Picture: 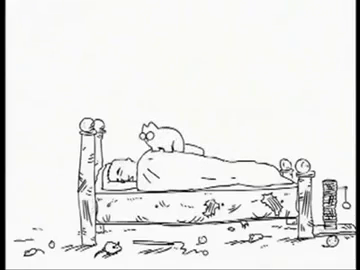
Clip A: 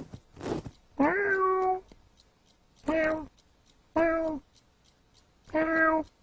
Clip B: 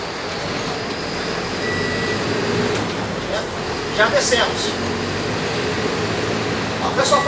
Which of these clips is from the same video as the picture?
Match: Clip A